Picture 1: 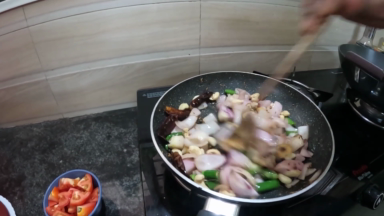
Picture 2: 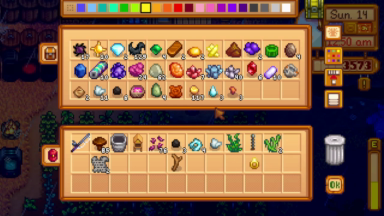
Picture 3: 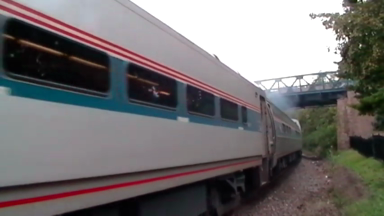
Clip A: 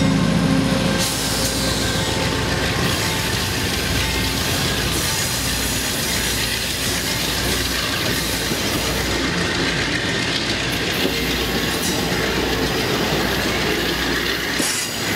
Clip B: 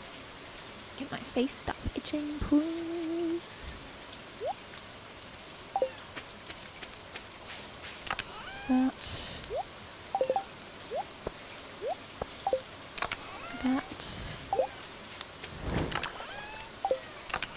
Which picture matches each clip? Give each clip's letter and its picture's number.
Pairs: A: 3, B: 2